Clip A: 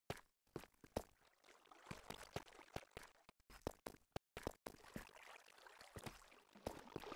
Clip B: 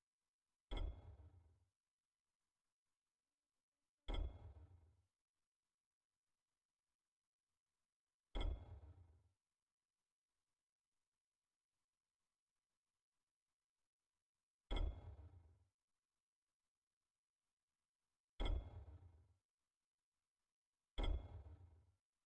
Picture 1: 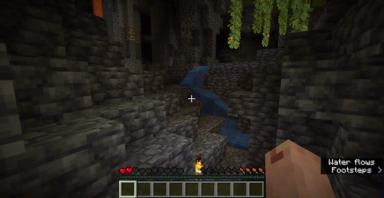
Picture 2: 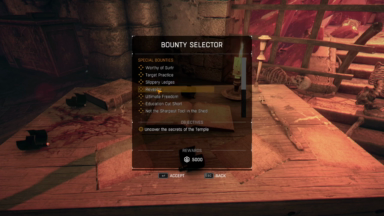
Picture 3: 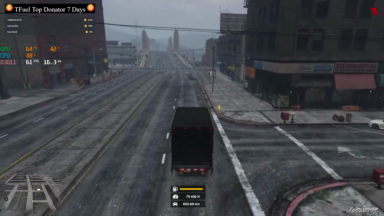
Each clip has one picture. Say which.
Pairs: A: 1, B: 2